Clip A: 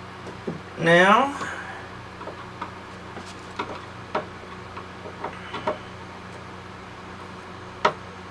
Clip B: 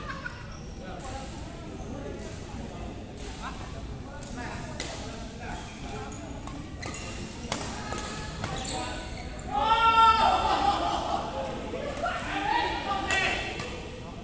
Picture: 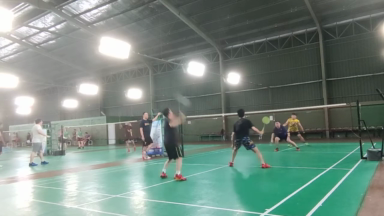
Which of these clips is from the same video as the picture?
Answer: B